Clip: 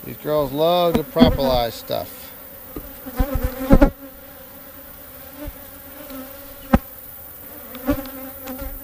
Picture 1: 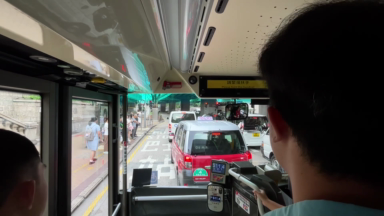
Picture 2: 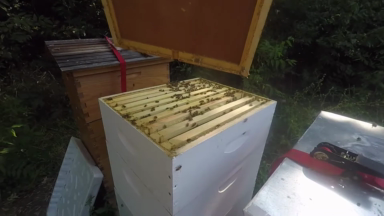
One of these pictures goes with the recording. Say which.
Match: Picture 2